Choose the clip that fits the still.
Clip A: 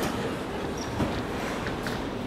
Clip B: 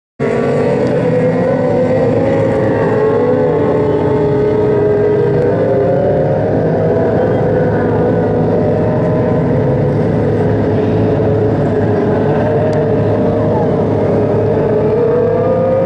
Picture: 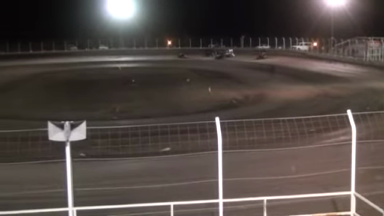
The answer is B